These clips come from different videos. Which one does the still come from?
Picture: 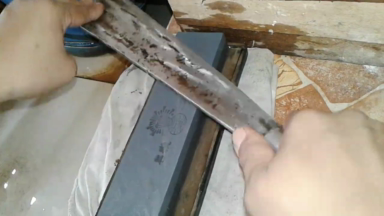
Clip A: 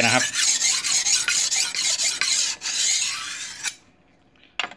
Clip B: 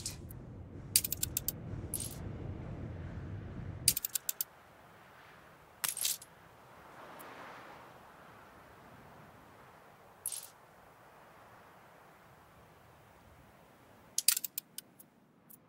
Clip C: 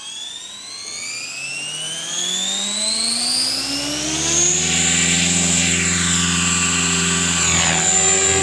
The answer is A